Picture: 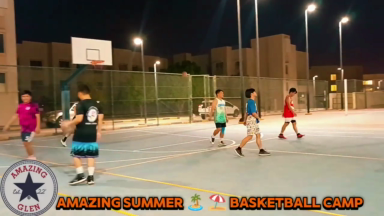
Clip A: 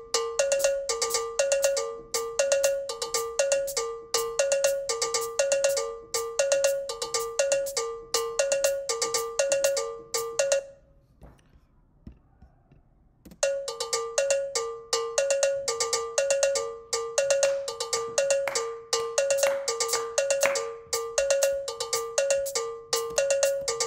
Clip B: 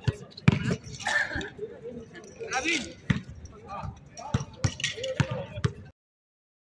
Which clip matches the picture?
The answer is B